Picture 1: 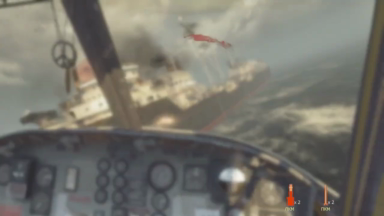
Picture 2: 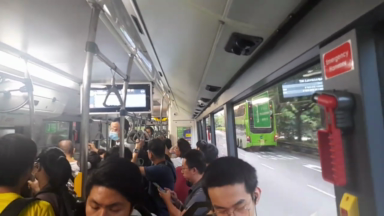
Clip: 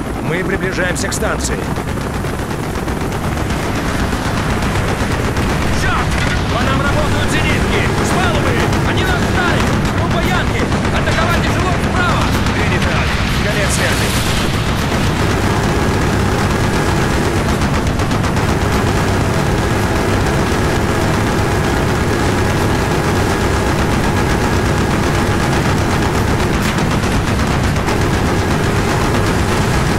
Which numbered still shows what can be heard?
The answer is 1